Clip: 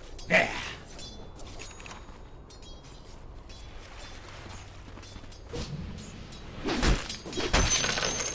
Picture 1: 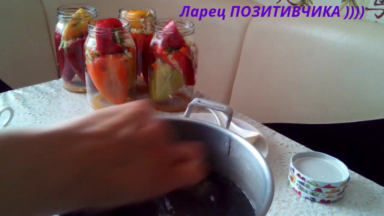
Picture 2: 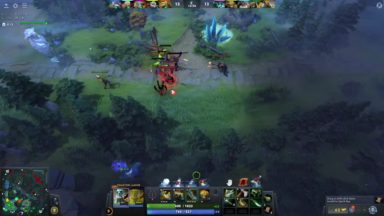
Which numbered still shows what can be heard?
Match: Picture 2